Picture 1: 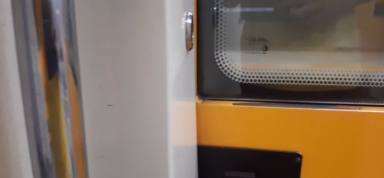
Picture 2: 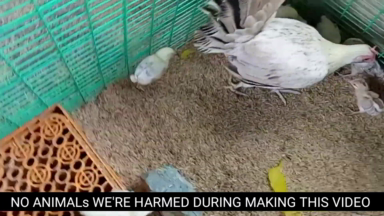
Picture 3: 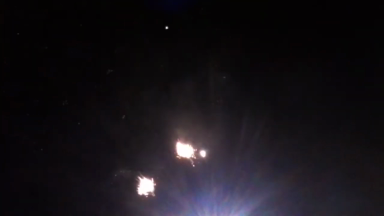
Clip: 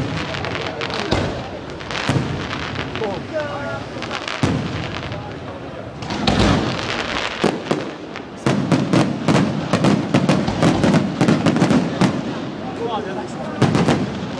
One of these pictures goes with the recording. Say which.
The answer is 3